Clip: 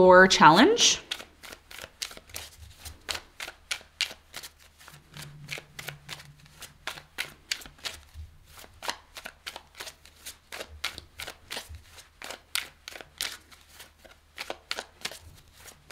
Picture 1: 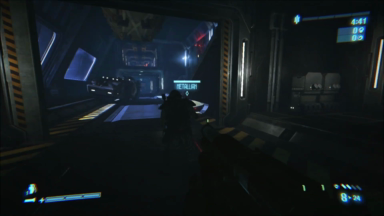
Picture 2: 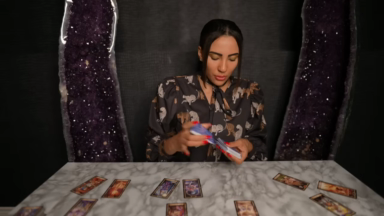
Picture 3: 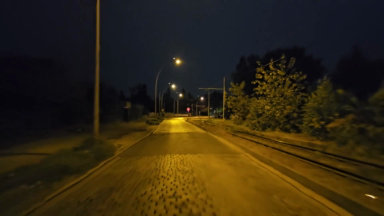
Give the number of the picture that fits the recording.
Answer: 2